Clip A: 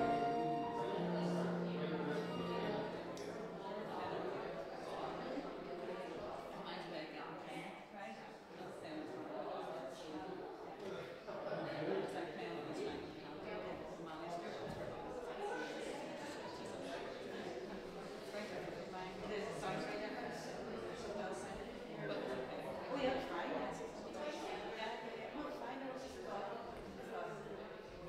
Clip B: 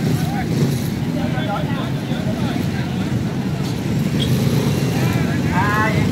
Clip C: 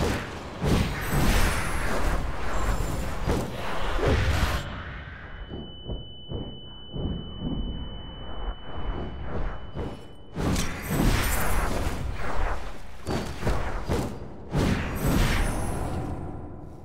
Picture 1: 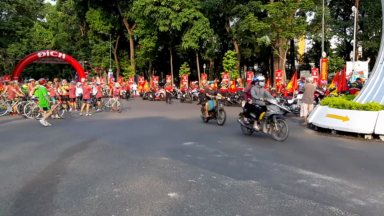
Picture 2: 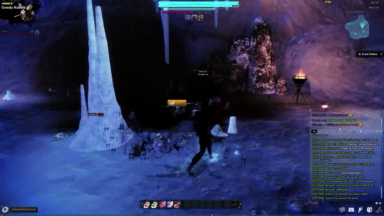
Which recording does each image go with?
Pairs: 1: B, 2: C